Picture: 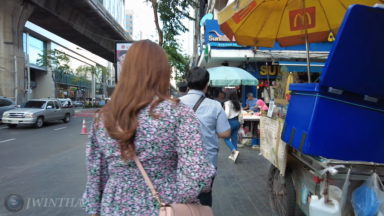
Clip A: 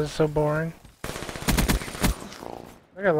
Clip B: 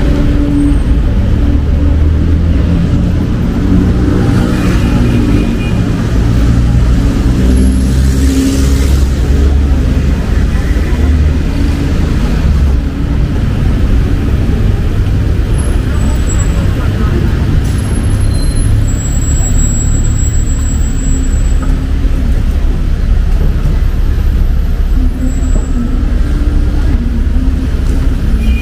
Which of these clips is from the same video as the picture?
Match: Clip B